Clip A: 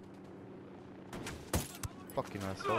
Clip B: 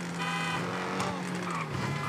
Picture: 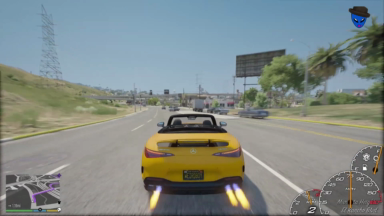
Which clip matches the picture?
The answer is B